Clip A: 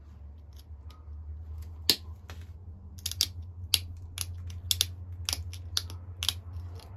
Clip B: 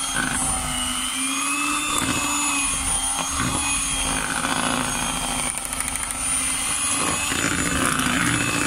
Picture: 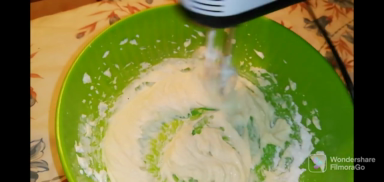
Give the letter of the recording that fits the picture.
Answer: B